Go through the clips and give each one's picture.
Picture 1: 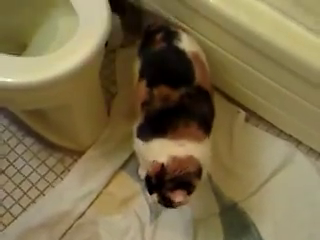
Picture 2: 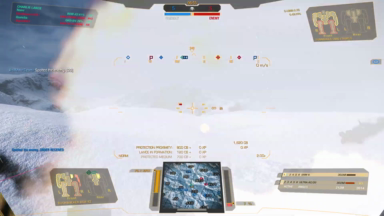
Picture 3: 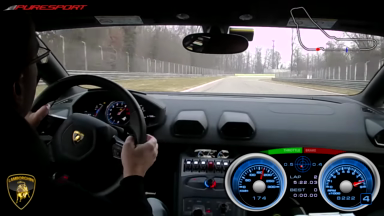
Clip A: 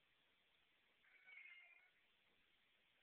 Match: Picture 1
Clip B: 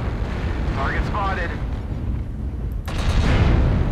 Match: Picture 2